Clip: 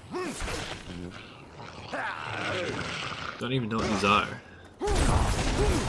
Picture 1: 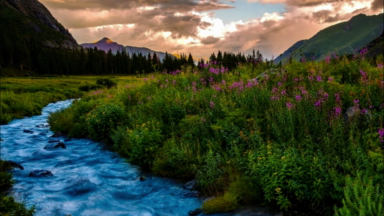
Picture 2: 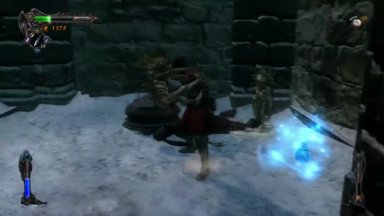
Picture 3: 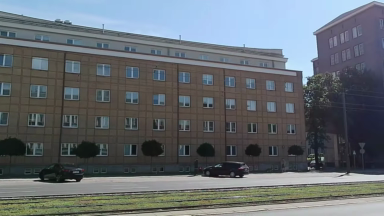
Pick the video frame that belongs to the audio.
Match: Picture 2